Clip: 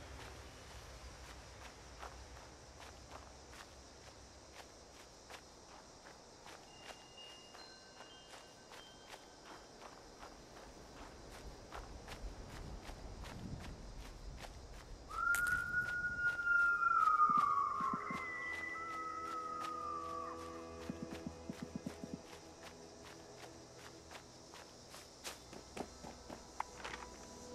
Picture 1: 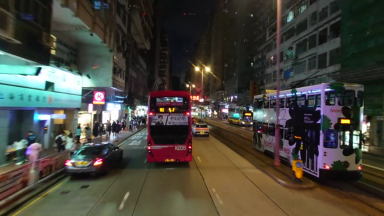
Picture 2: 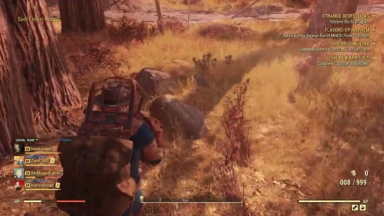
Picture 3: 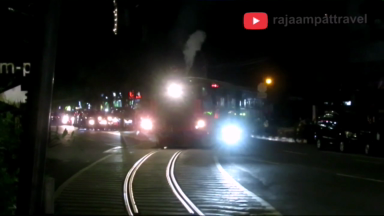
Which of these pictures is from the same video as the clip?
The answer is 2